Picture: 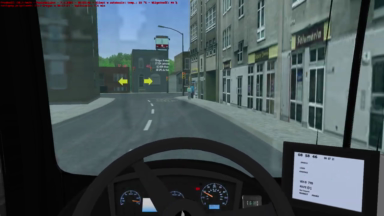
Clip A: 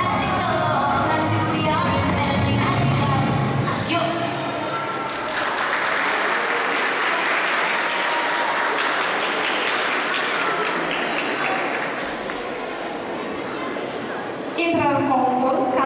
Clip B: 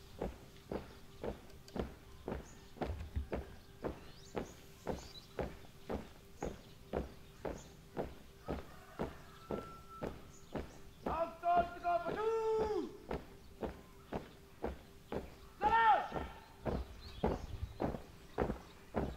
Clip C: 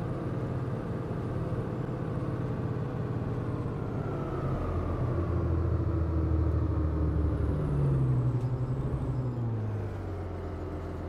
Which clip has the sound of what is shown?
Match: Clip C